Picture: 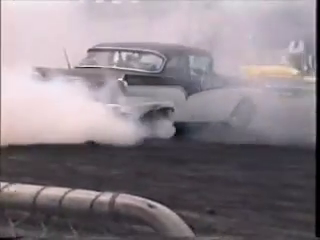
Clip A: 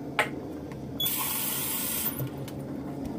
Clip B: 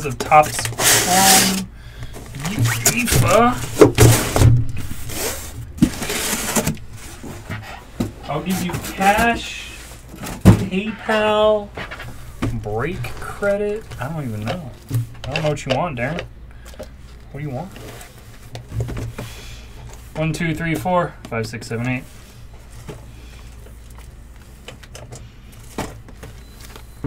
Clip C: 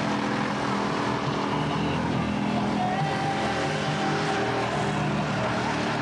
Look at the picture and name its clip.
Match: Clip C